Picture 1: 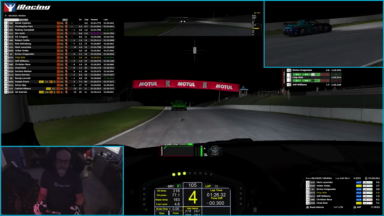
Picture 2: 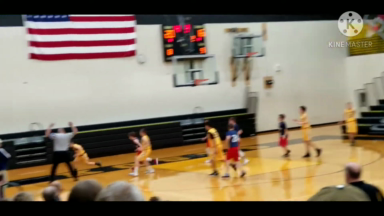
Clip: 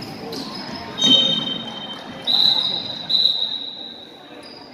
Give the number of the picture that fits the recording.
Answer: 2